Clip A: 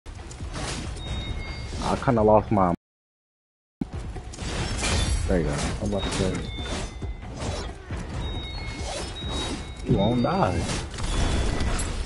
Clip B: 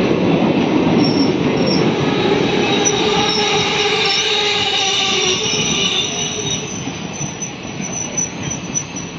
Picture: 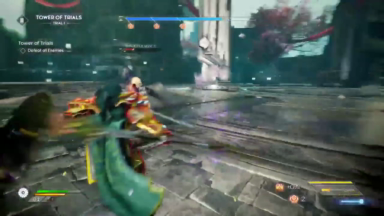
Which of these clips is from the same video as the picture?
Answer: A